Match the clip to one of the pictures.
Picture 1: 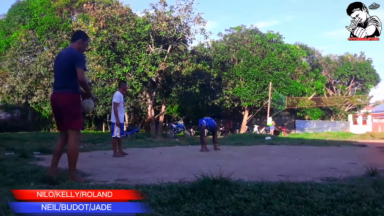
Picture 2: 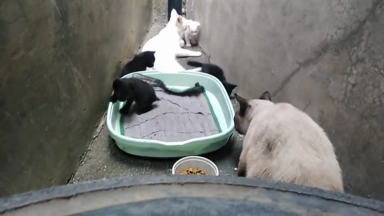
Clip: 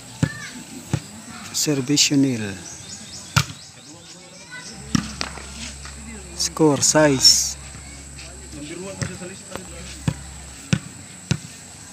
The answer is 1